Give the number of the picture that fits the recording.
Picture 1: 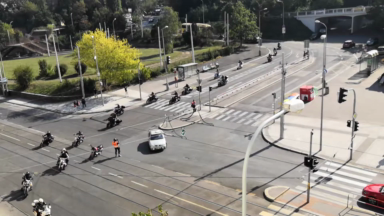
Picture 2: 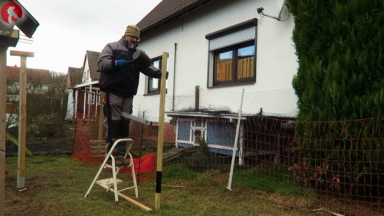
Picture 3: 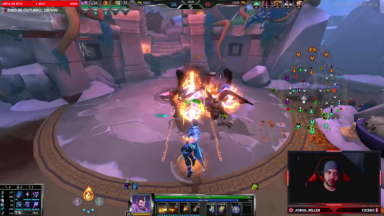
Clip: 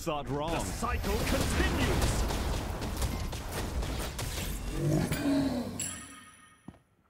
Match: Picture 3